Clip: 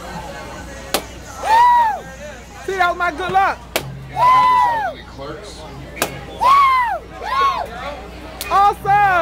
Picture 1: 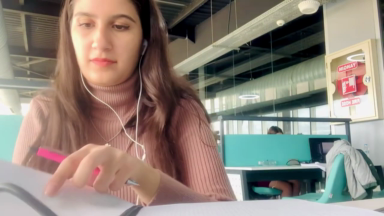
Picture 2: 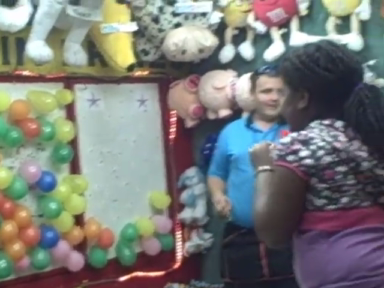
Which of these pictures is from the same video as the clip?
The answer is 2